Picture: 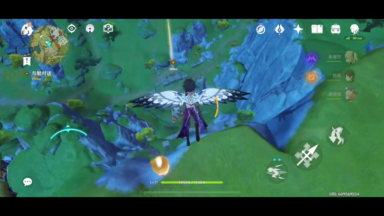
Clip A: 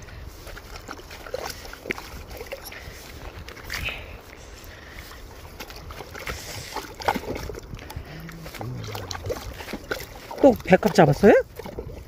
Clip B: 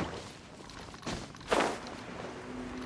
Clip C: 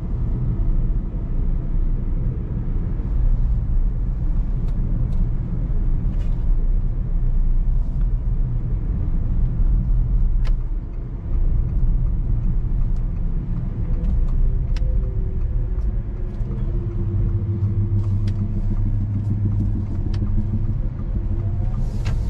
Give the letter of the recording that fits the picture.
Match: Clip B